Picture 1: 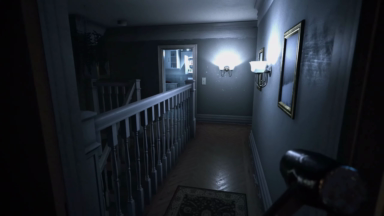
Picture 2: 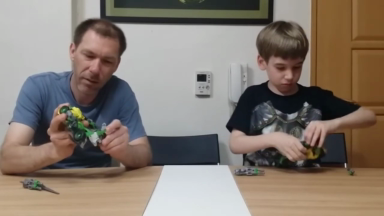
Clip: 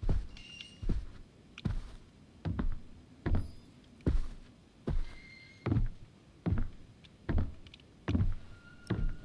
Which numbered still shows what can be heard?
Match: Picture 1